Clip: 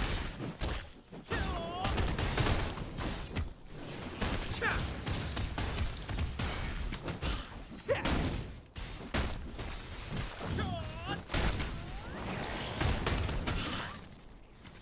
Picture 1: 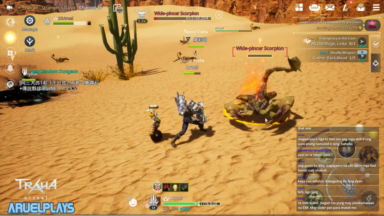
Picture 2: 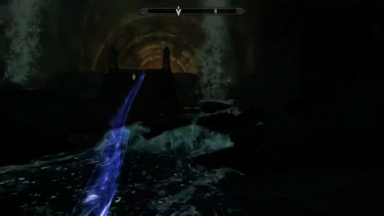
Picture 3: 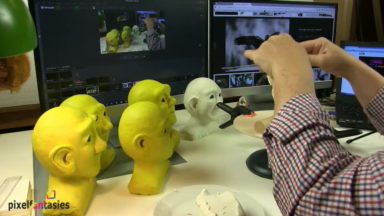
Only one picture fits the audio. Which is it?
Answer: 1